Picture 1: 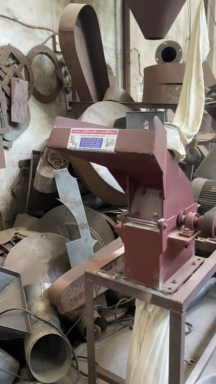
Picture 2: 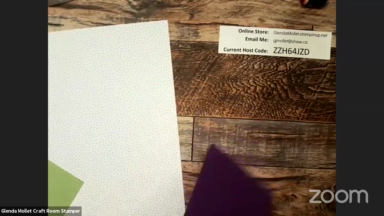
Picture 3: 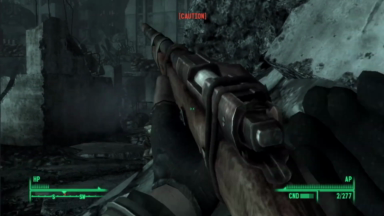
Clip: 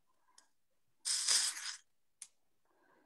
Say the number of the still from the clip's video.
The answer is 2